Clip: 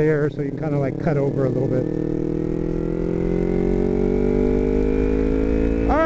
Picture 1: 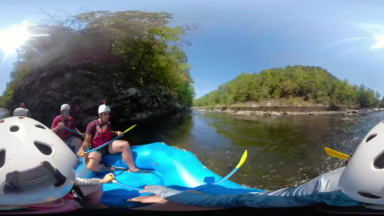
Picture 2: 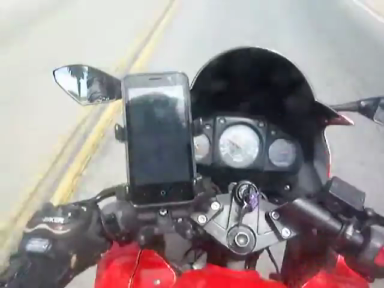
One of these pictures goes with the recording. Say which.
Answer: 2